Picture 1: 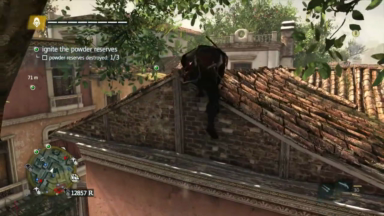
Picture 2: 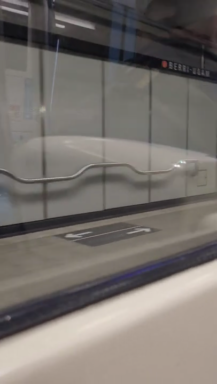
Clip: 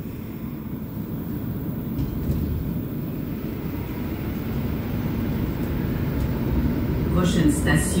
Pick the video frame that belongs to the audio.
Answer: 2